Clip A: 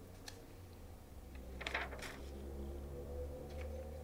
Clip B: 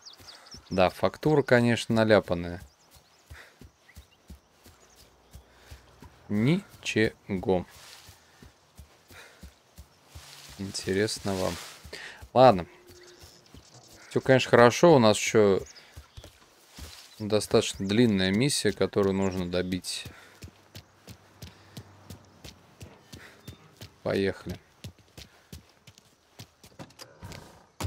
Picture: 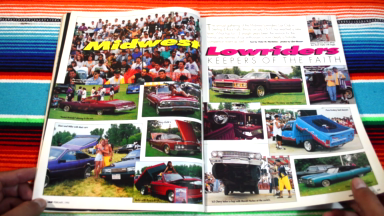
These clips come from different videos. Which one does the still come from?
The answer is A